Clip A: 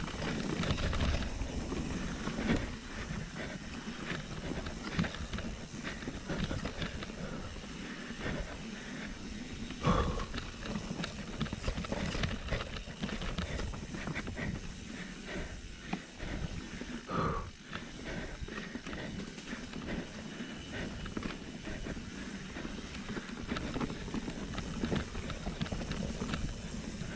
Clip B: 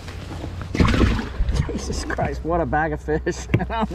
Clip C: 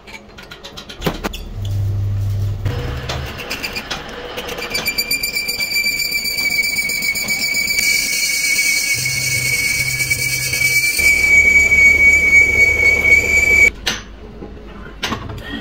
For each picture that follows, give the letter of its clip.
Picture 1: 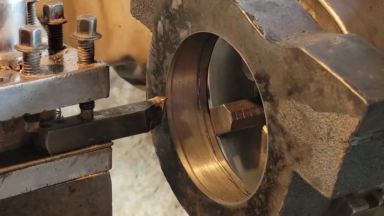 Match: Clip C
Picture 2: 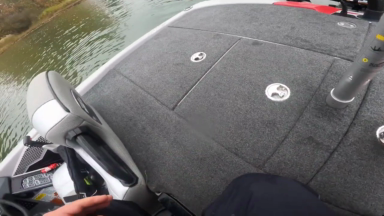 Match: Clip B